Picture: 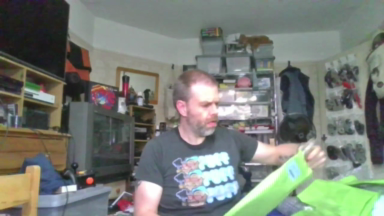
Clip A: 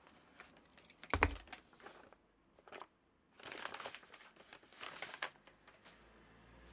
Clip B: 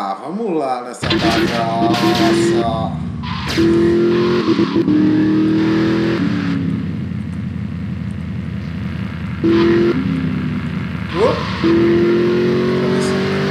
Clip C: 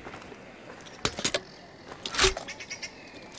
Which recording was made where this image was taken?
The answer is A